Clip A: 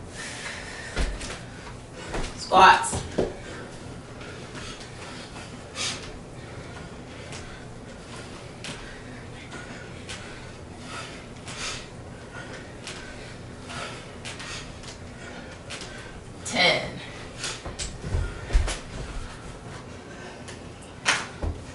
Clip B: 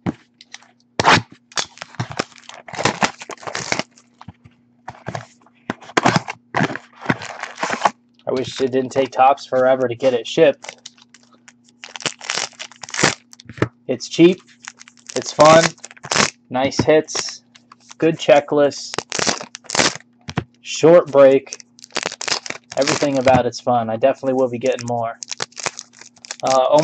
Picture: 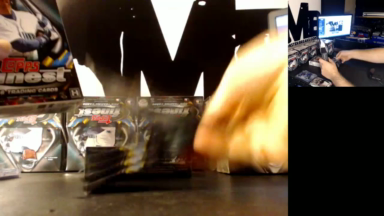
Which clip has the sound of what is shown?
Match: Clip B